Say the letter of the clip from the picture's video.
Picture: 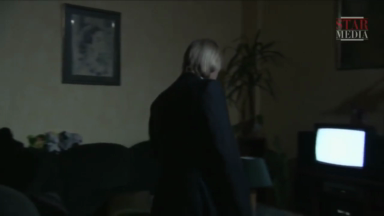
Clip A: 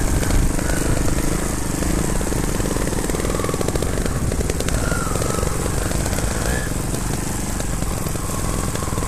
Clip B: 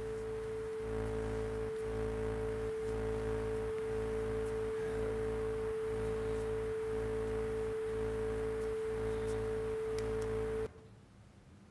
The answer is B